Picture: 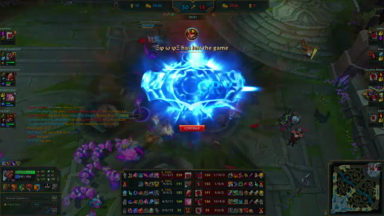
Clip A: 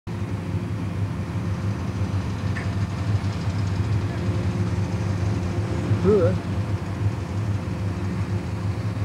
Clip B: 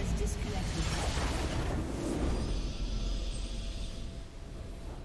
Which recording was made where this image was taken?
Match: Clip B